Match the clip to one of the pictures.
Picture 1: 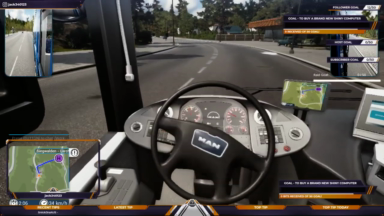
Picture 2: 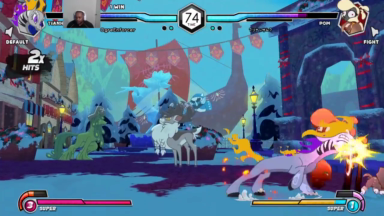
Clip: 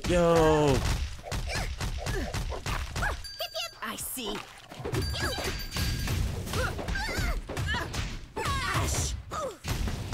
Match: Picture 2